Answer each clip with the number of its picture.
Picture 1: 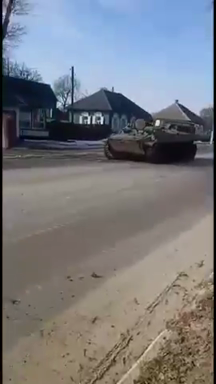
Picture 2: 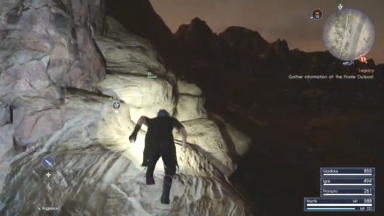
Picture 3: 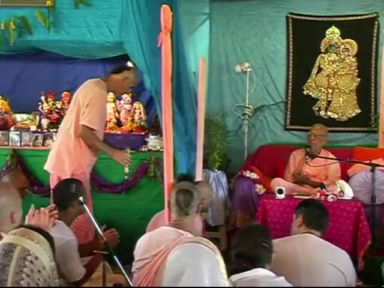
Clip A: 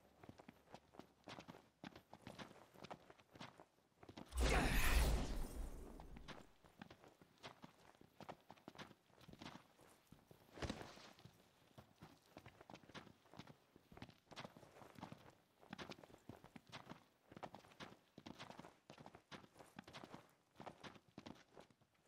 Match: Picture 2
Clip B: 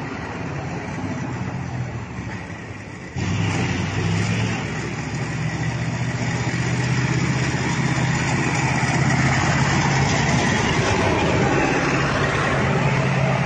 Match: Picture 1